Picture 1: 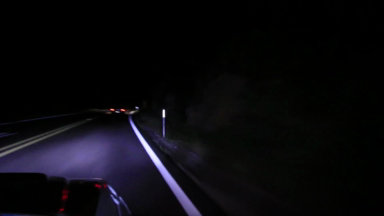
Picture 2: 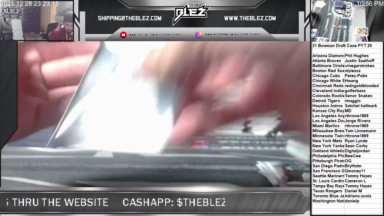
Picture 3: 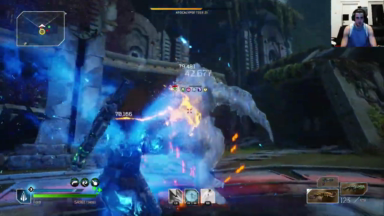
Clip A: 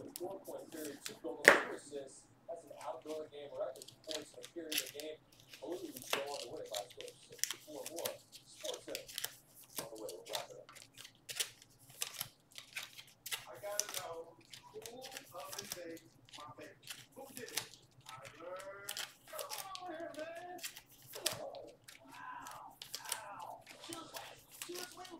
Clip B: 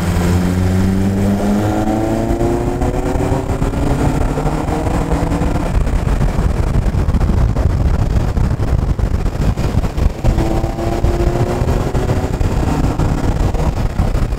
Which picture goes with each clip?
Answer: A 2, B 1